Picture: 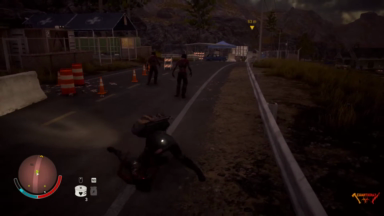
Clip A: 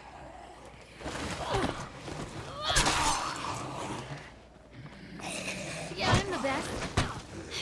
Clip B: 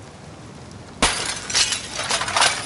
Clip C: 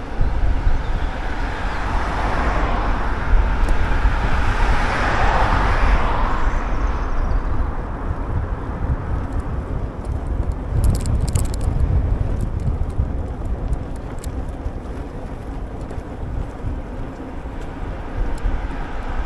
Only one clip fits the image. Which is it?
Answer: A